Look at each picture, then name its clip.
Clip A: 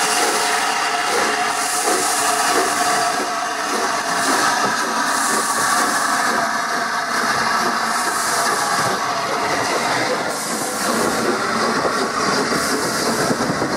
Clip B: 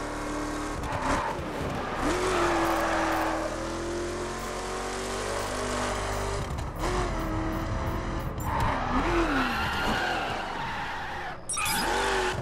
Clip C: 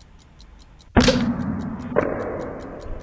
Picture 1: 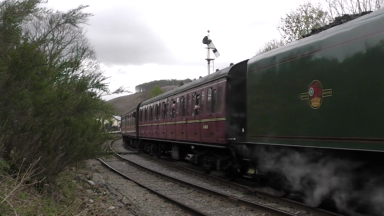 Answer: A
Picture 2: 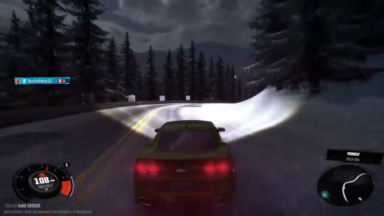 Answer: B